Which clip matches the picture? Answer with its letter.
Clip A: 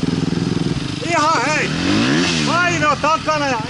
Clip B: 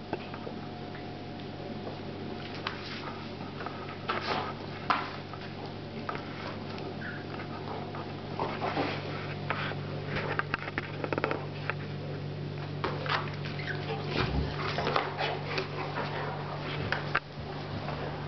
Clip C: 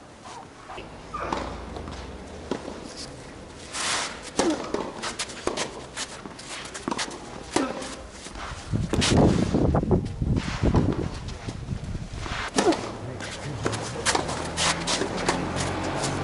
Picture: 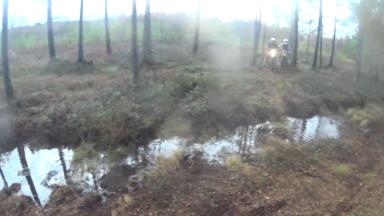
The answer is A